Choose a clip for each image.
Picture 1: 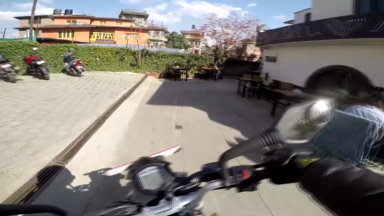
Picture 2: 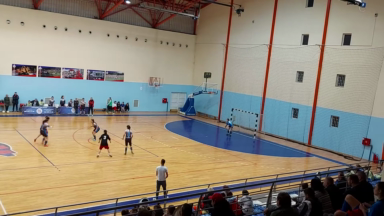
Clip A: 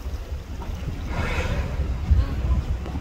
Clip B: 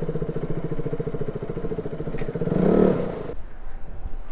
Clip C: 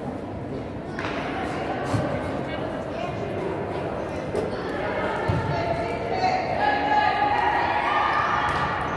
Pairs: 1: B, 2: C